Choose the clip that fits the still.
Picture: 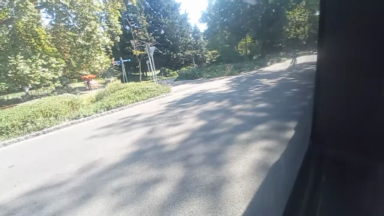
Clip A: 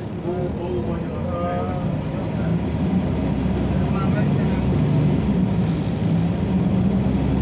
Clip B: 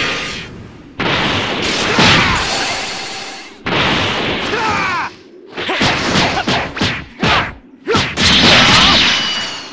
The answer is A